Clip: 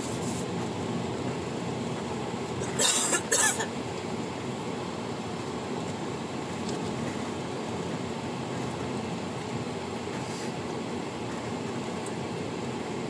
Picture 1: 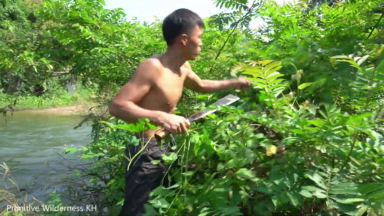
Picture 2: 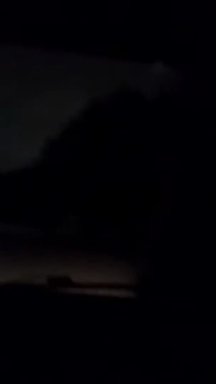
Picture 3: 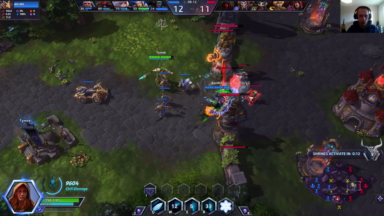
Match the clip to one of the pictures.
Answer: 2